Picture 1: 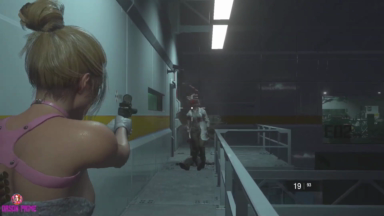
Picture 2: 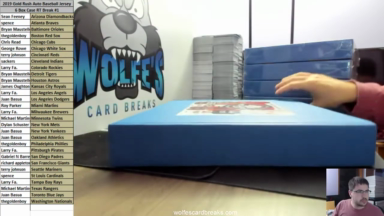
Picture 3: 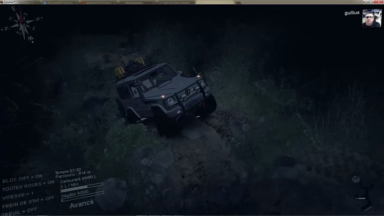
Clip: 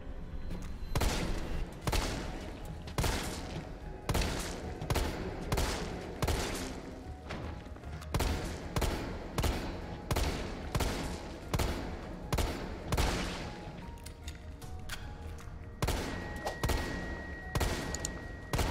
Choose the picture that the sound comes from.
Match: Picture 1